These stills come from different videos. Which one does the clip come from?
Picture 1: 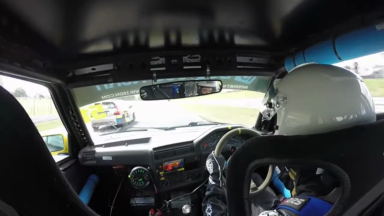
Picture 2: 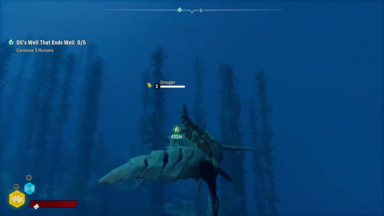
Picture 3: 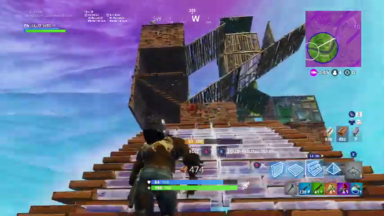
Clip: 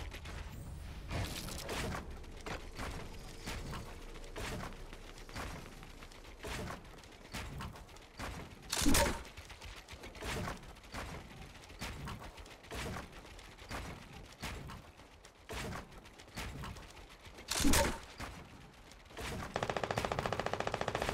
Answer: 3